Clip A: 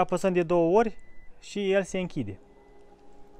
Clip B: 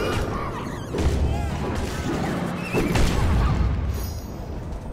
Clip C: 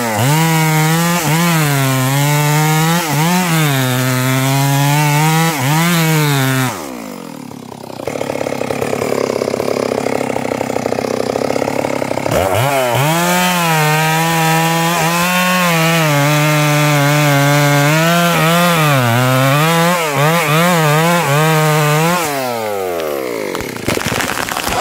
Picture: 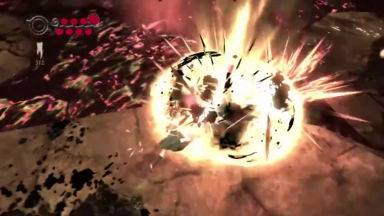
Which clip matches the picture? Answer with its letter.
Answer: B